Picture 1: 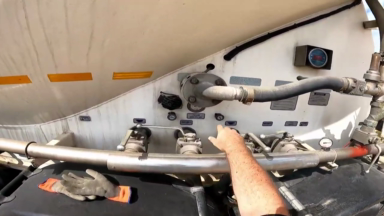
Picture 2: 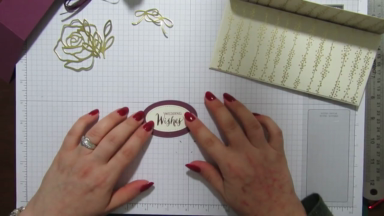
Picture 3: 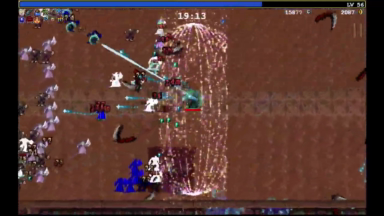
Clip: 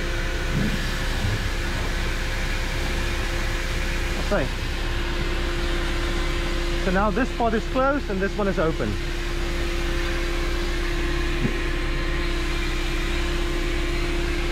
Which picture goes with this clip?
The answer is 1